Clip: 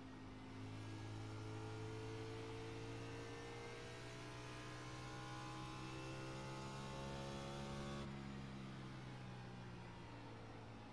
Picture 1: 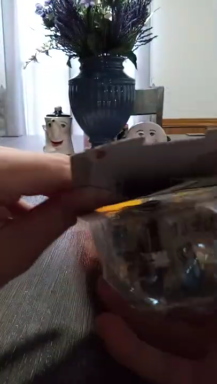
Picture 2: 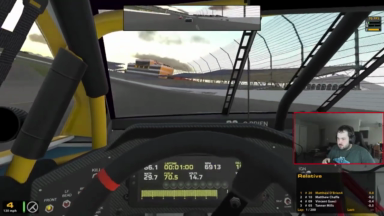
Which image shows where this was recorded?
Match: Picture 2